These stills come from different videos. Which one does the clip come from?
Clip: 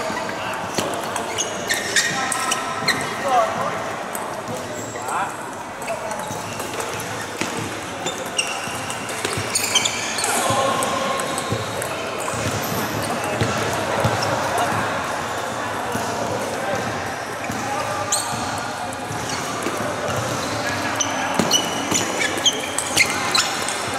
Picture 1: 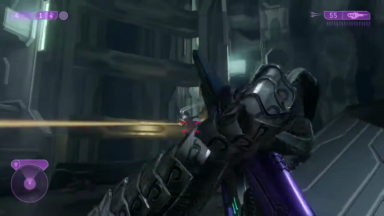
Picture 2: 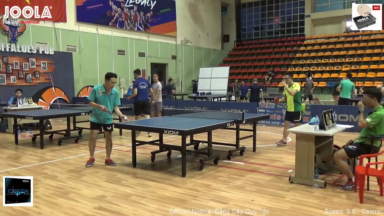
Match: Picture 2